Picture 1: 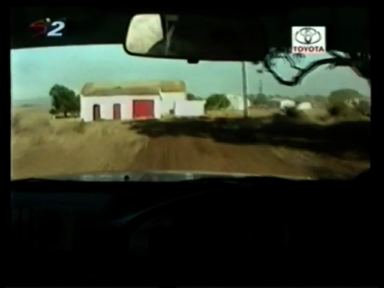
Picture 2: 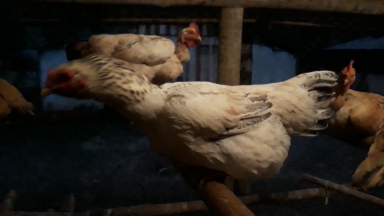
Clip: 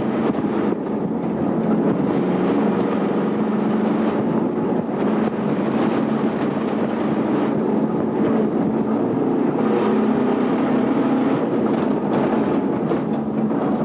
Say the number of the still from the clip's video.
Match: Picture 1